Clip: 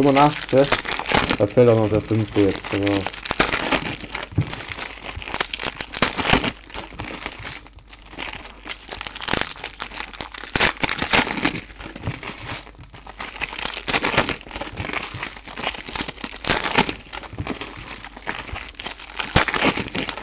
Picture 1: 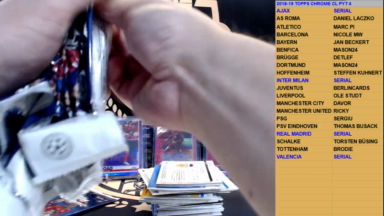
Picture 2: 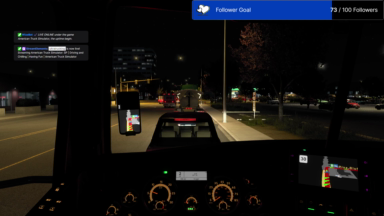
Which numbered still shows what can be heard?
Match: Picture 1